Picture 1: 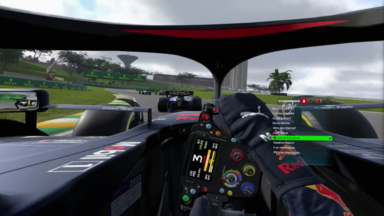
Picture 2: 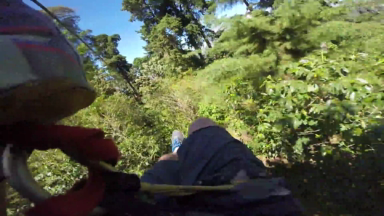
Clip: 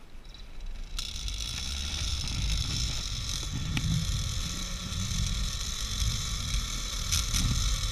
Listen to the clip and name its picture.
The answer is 2